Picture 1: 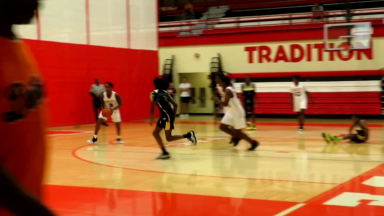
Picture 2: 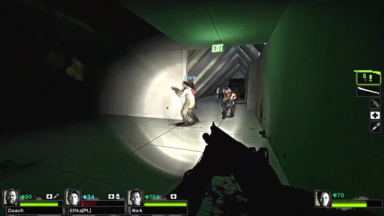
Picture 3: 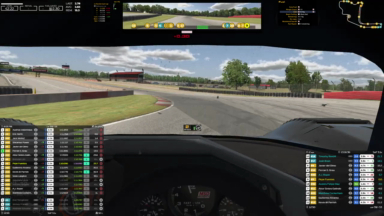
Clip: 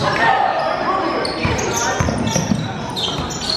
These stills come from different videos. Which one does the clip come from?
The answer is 1